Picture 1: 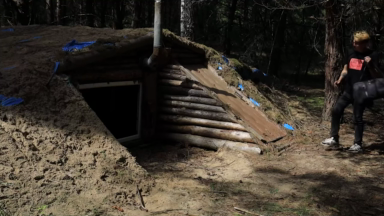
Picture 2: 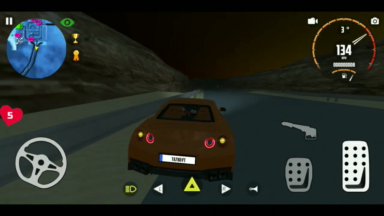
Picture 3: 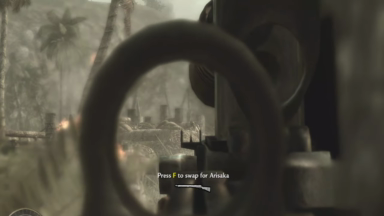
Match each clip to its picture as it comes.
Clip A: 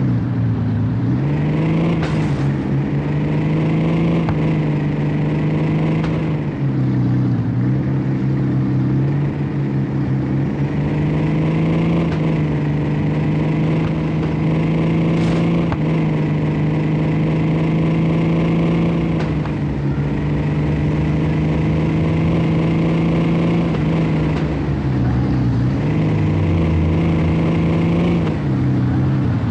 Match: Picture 2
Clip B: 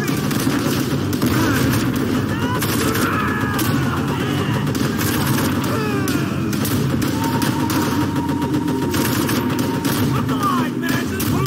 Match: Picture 3